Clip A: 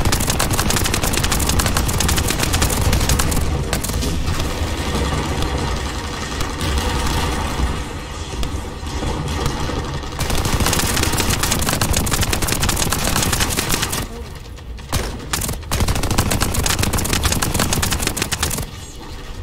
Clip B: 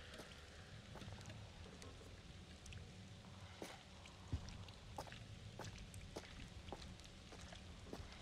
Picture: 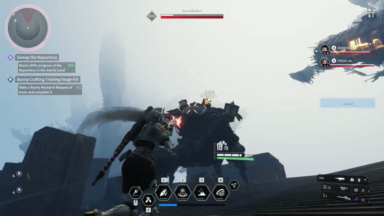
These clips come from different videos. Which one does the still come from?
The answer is A